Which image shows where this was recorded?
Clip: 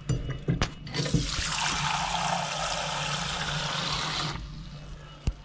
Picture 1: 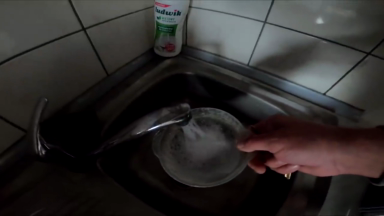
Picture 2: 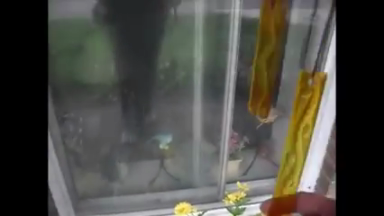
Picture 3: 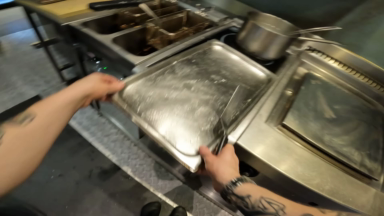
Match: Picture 1